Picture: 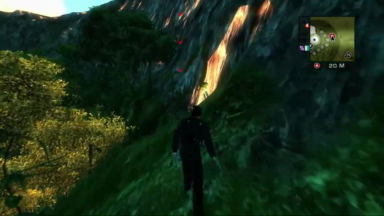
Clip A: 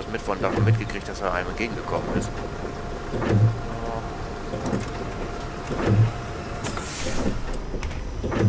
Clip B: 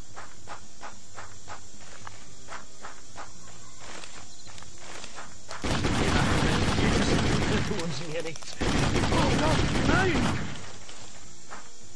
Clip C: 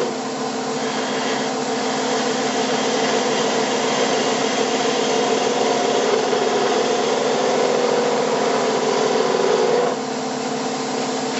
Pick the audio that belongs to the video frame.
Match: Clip B